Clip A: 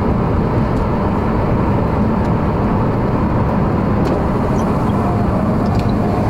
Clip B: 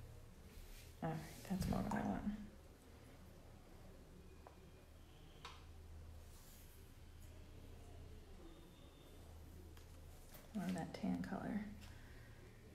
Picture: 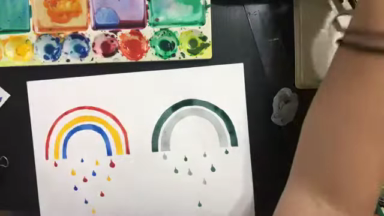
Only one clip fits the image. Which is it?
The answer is B